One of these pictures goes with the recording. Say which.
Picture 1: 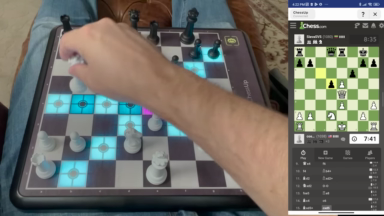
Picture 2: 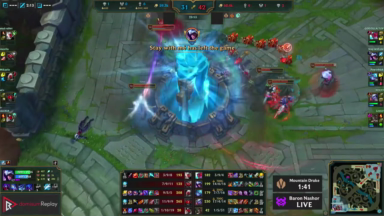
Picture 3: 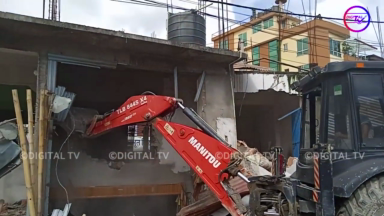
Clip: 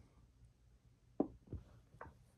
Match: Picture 1